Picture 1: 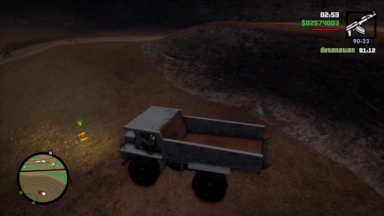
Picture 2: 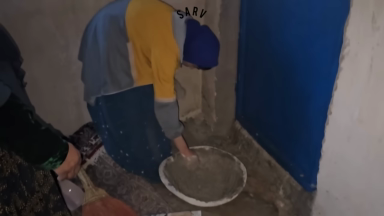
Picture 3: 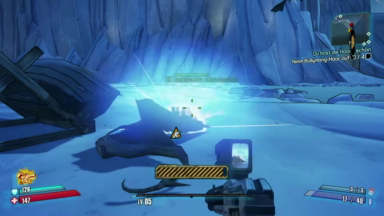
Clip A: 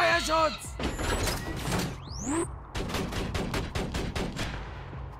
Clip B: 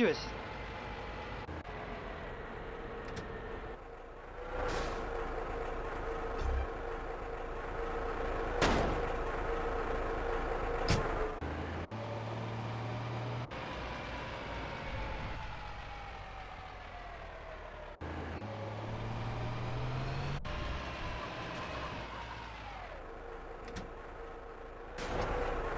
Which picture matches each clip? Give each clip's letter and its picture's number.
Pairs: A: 3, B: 1